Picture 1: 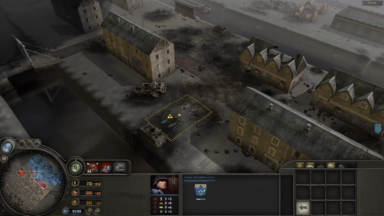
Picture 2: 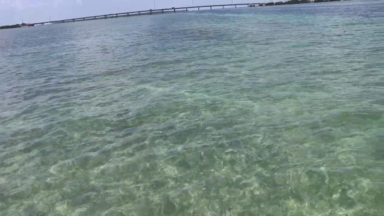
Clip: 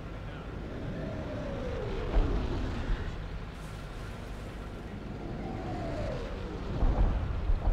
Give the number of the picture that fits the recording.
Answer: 1